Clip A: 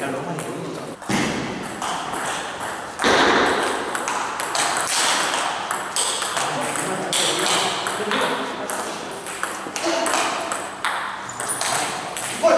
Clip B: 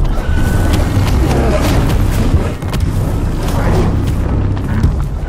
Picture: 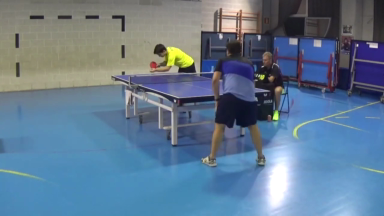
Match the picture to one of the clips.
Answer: A